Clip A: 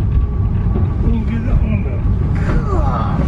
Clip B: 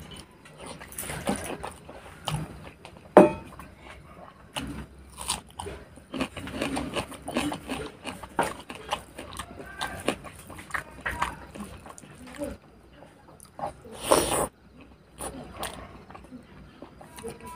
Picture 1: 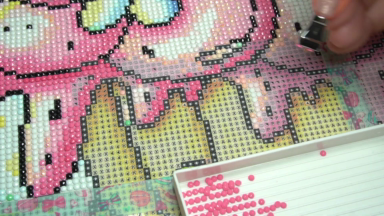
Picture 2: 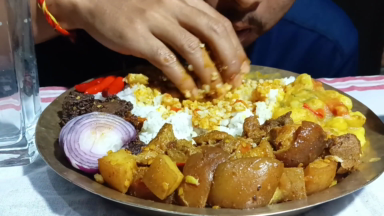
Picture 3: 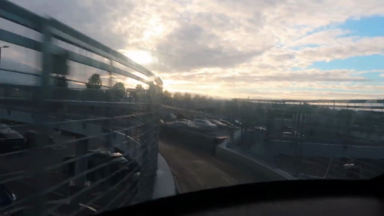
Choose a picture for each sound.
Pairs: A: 3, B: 2